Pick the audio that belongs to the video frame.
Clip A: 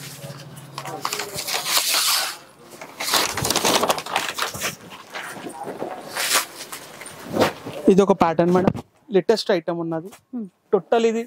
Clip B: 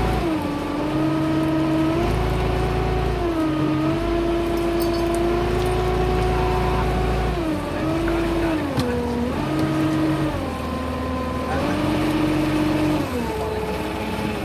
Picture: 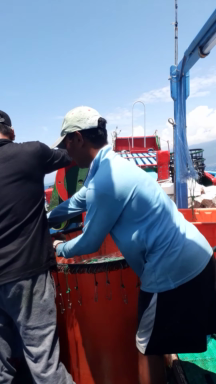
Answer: B